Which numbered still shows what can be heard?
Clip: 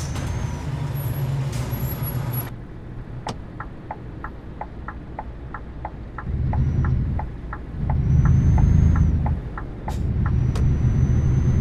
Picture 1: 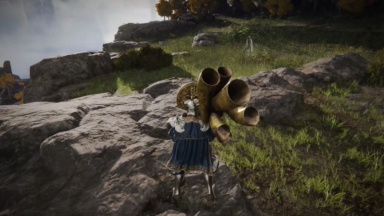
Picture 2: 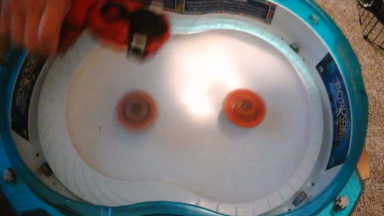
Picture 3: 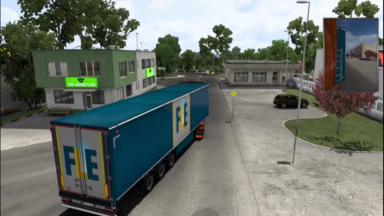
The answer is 3